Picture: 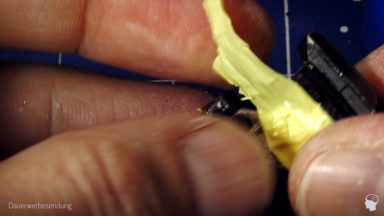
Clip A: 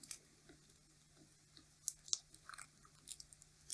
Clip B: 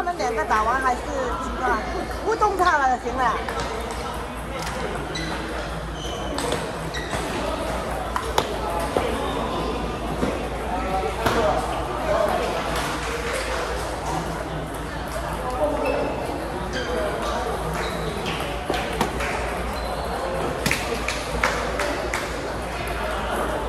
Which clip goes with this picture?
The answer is A